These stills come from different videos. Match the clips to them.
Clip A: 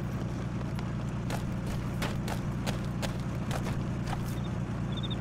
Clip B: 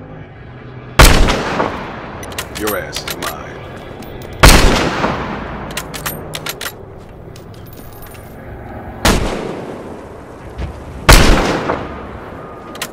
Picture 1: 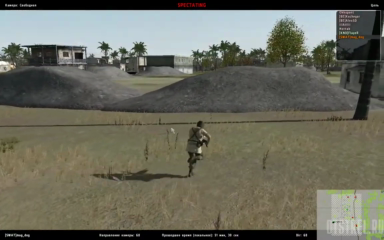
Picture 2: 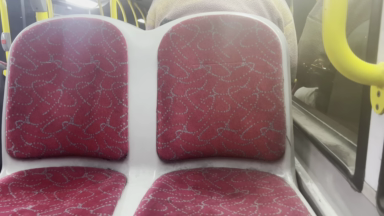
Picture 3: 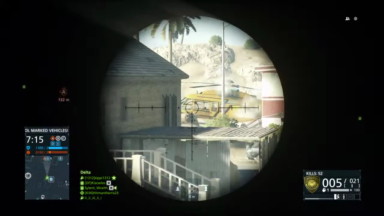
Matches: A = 1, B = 3